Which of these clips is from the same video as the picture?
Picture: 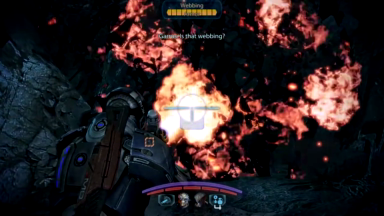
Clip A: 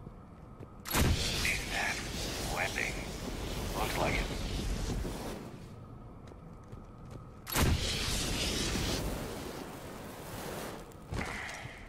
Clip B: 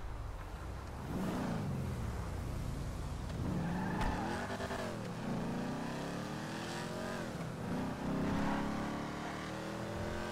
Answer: A